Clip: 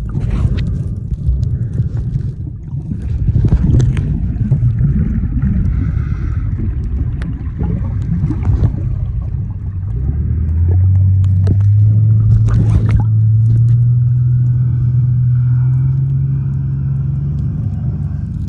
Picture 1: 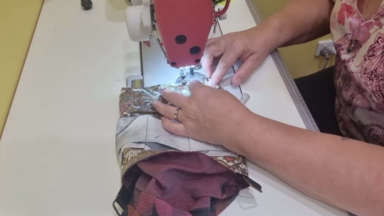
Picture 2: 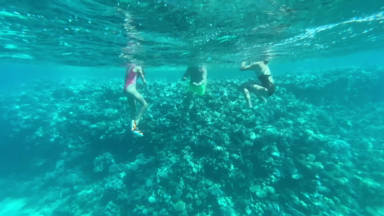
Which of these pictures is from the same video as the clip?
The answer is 2